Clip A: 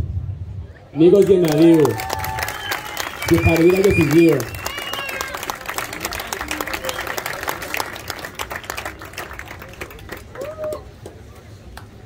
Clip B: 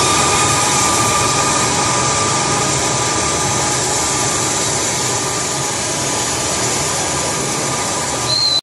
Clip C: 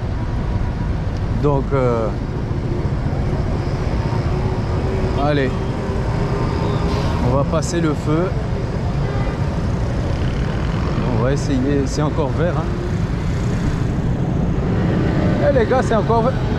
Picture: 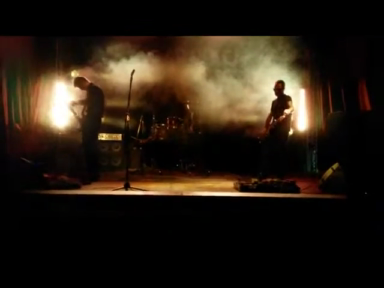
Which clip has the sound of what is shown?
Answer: B